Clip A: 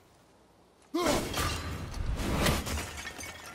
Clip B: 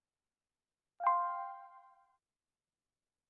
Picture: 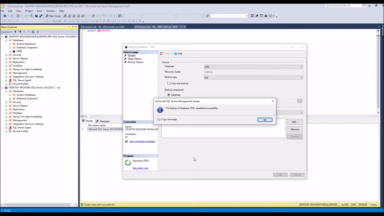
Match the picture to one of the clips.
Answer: B